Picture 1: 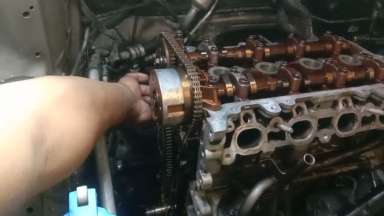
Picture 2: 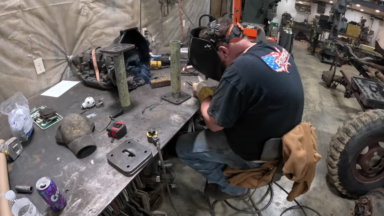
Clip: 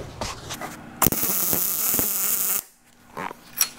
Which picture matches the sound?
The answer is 2